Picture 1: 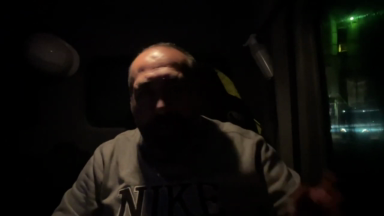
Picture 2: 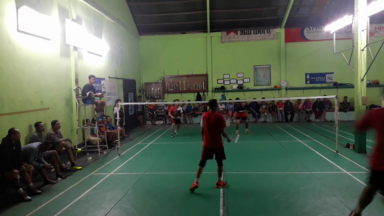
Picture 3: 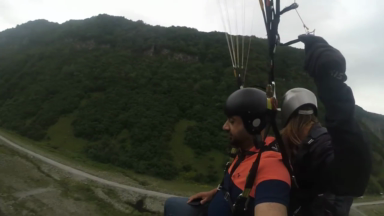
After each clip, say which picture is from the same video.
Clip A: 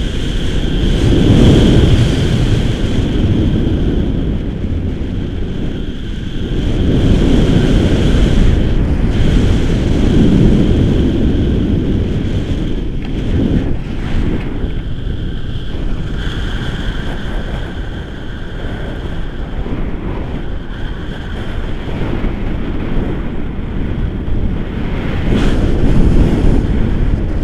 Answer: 3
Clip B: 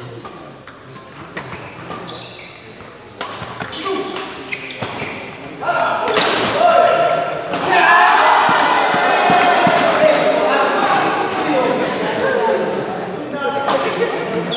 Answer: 2